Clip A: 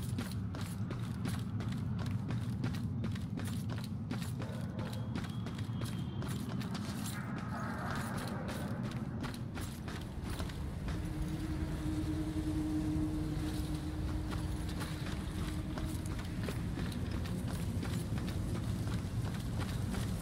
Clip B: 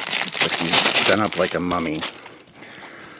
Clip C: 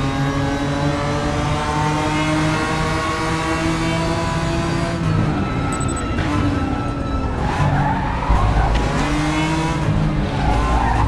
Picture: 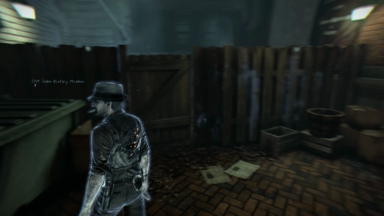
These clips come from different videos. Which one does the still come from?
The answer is A